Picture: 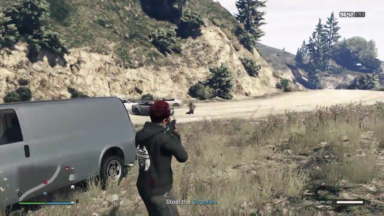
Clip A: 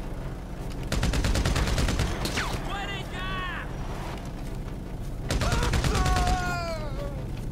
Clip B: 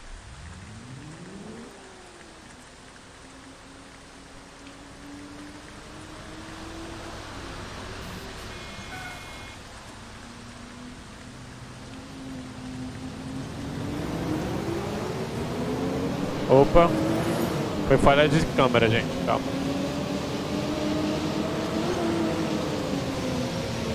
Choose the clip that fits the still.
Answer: A